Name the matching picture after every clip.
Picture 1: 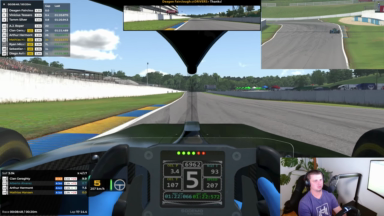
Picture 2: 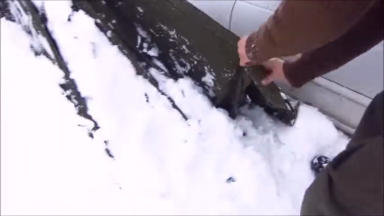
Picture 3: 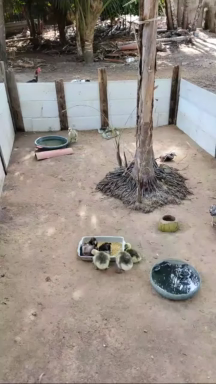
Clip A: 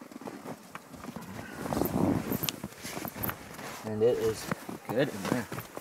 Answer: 2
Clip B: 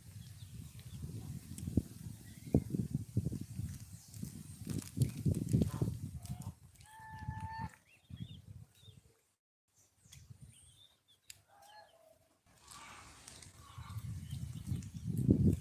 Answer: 3